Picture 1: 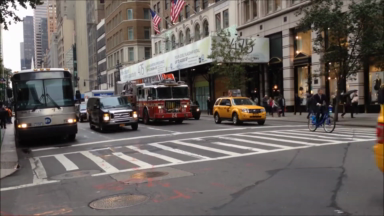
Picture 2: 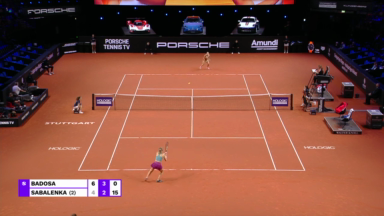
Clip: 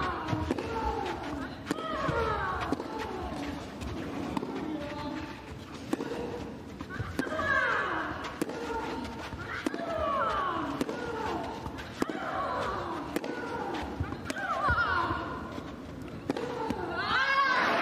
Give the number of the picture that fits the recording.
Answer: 2